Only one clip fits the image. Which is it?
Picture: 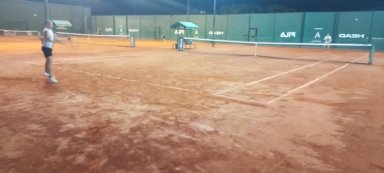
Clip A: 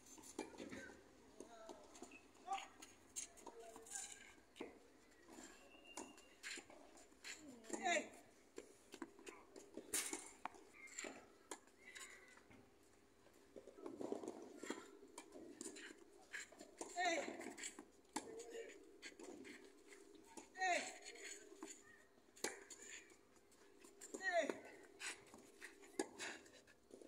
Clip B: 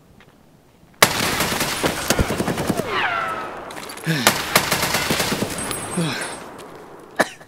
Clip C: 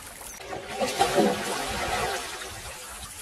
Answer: A